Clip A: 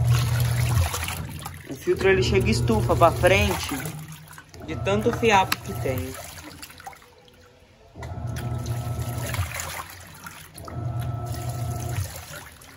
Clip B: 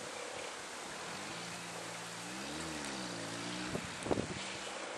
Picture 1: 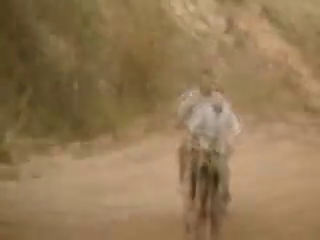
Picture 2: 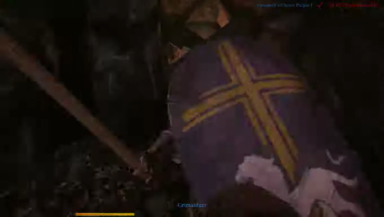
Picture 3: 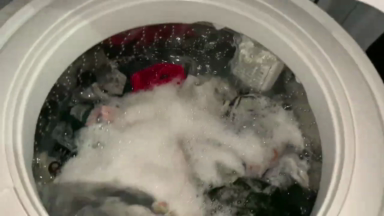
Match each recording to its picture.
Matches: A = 3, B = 1